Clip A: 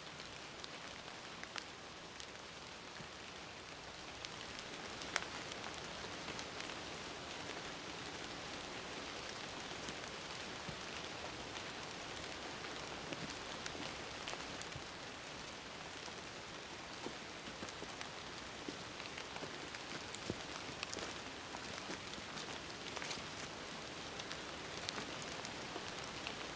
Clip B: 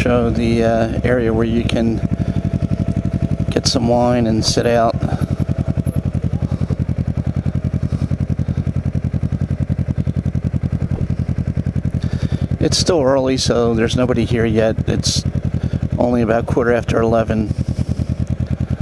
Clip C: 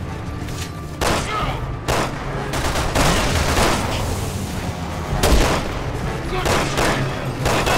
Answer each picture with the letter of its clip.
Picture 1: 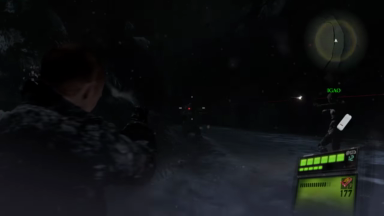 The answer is C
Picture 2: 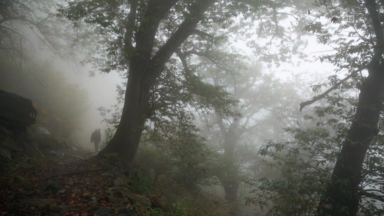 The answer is A